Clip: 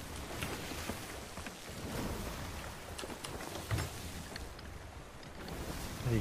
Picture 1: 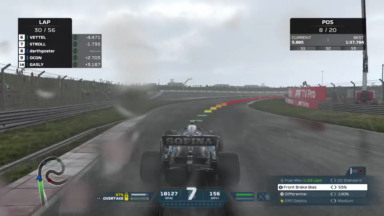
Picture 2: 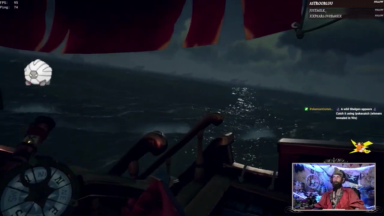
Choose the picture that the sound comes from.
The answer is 2